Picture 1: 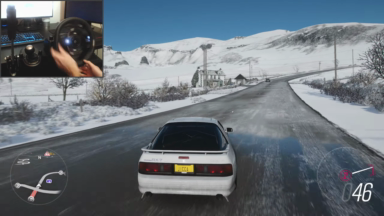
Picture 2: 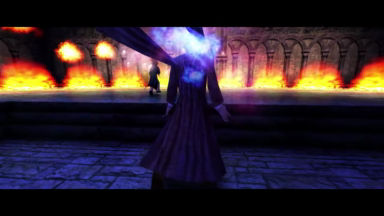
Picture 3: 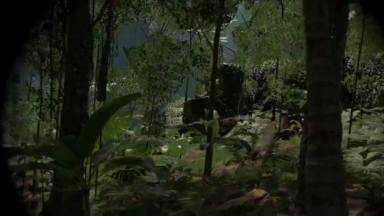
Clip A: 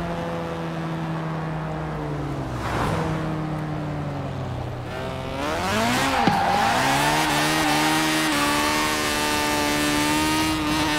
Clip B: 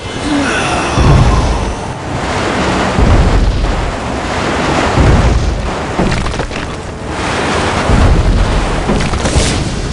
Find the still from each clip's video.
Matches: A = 1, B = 2